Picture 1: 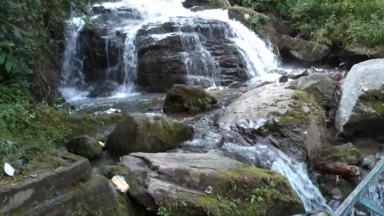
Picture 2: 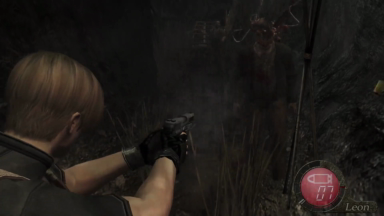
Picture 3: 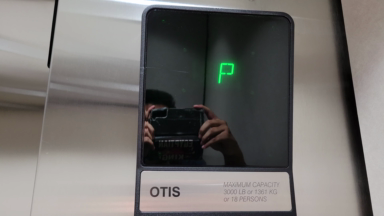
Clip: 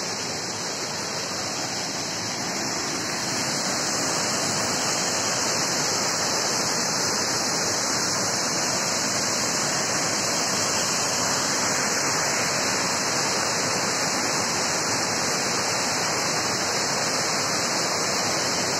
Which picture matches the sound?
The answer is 1